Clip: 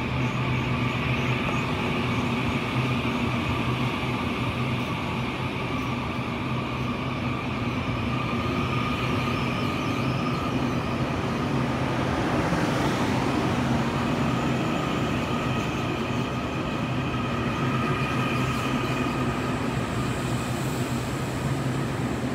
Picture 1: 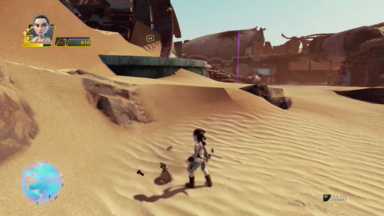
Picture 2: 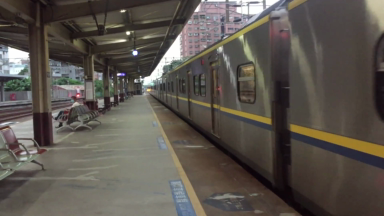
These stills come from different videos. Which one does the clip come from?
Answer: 2